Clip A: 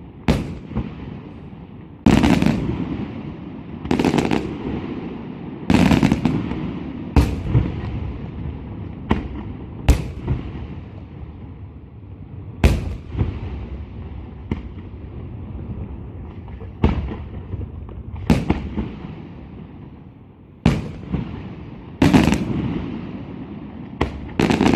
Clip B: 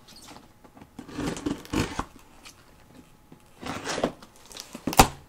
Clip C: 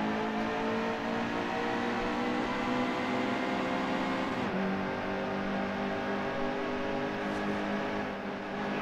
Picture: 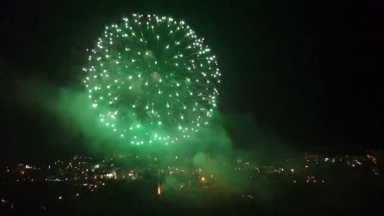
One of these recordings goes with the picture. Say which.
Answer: A